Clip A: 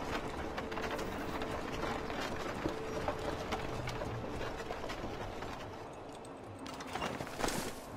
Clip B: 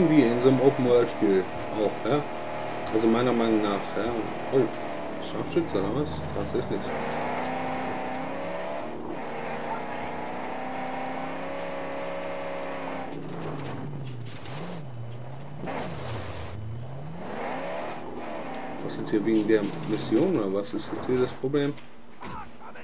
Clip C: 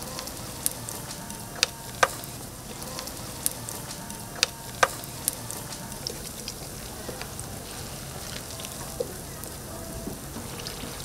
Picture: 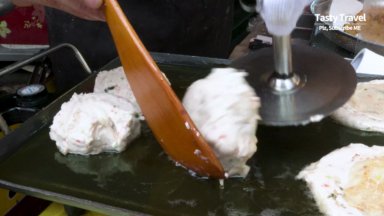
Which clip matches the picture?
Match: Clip C